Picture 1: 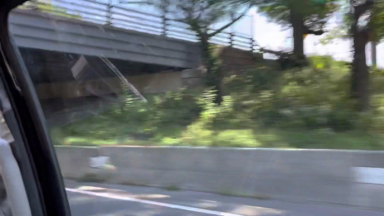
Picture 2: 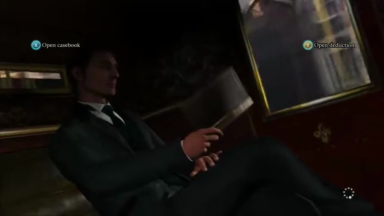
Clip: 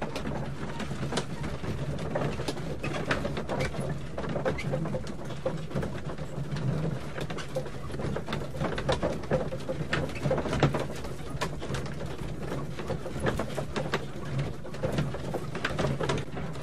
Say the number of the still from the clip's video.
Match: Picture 2